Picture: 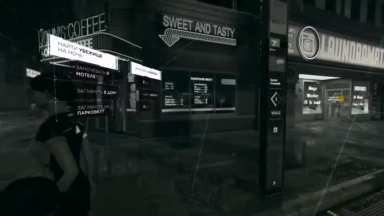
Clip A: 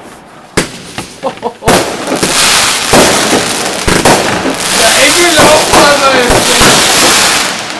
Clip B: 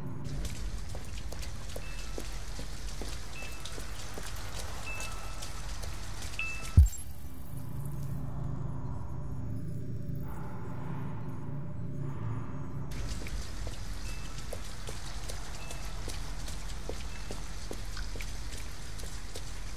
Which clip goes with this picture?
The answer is B